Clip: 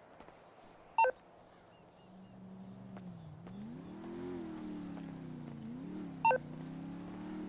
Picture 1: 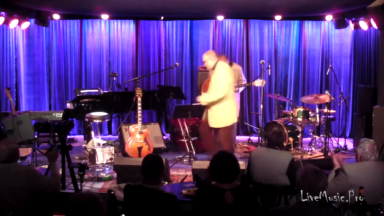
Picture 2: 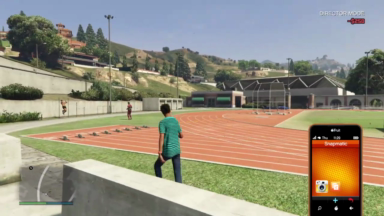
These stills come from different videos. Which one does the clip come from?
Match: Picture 2